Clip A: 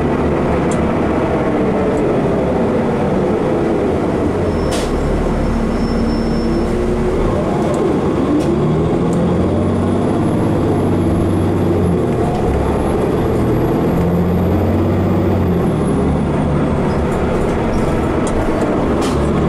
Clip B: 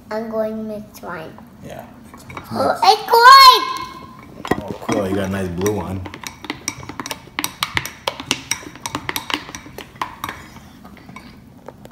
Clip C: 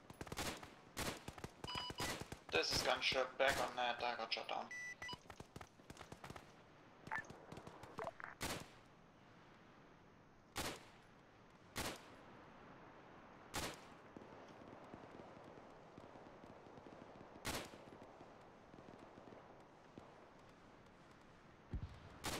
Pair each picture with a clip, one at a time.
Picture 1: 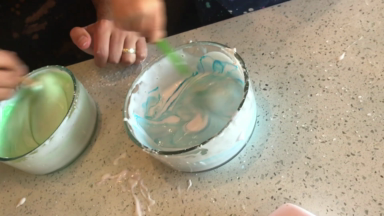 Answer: B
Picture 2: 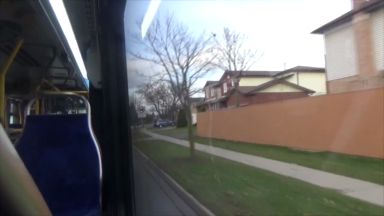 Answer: A